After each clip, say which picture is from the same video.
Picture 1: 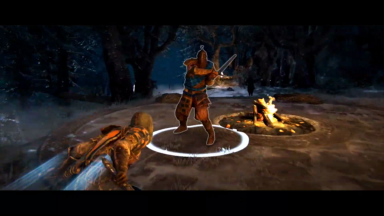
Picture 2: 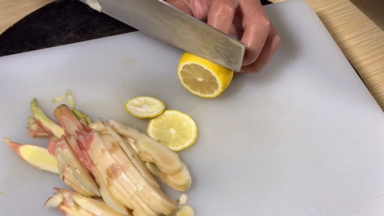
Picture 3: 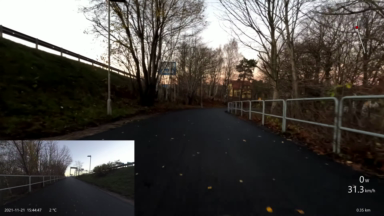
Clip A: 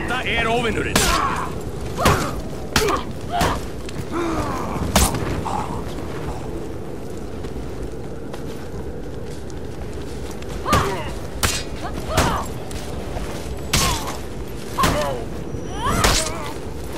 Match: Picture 1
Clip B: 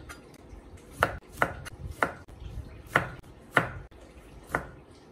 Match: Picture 2